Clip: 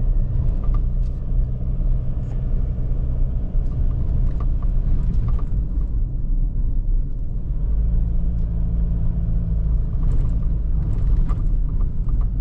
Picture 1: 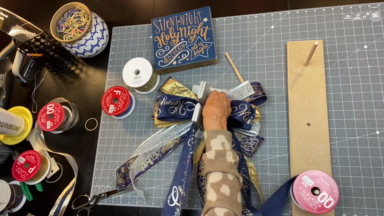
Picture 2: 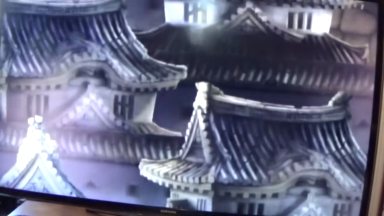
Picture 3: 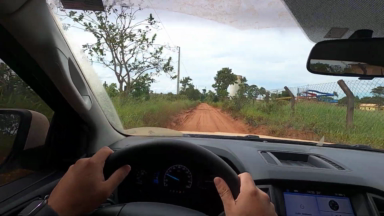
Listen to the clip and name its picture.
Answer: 3